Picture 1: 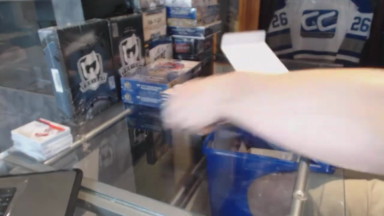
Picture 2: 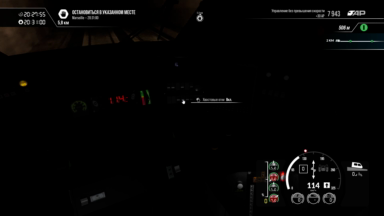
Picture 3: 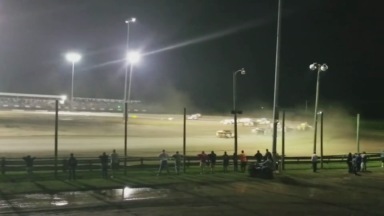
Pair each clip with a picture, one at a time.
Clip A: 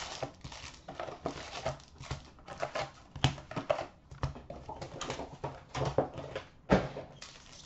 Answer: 1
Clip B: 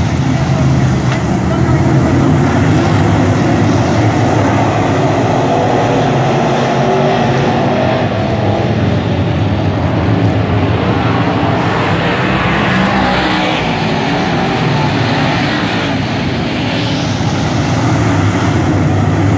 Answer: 3